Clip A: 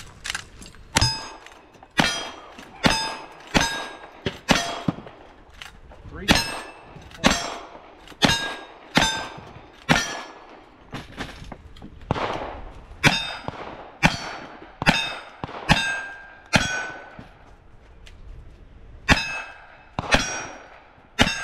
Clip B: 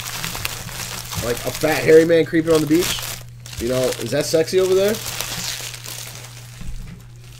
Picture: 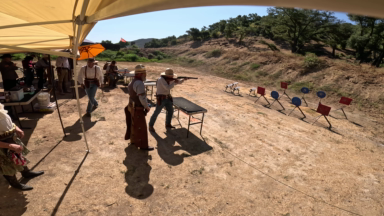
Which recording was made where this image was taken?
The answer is A